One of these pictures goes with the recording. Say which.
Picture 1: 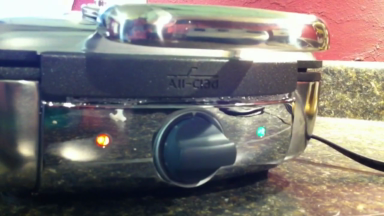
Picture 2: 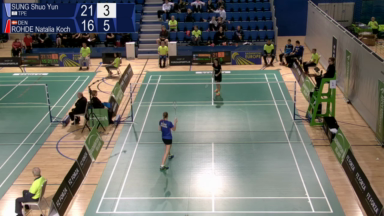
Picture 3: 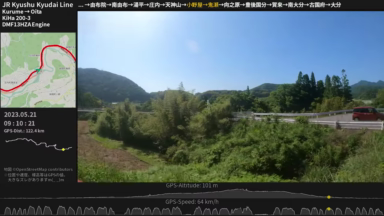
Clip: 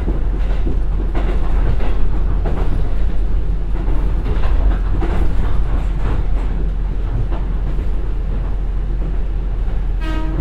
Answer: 3